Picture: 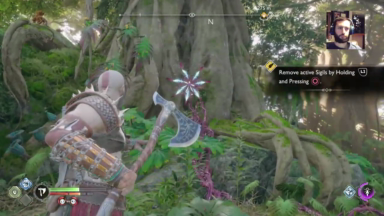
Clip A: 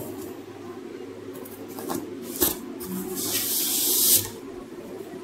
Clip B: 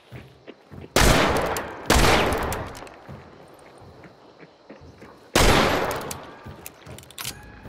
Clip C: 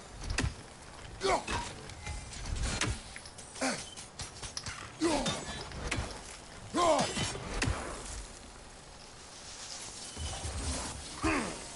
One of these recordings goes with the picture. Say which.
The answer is C